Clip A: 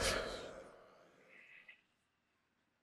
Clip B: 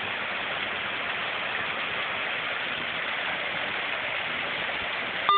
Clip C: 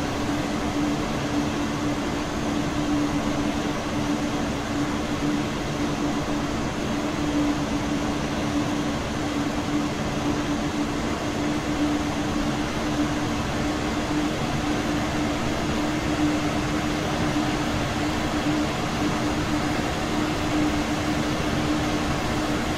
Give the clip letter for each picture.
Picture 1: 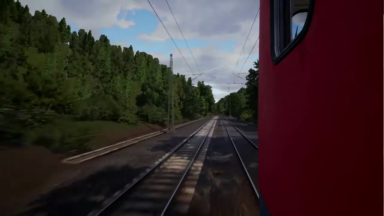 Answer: C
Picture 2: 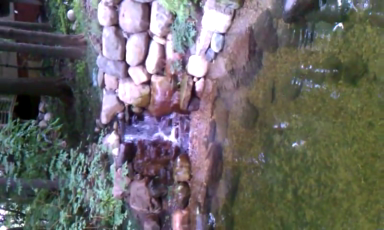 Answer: B